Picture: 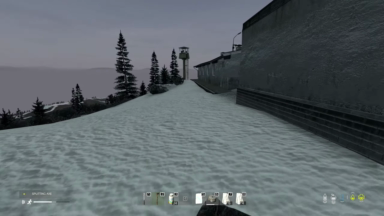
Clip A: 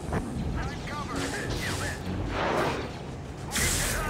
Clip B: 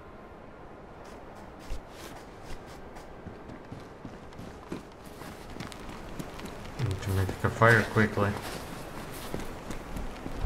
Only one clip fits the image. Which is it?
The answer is B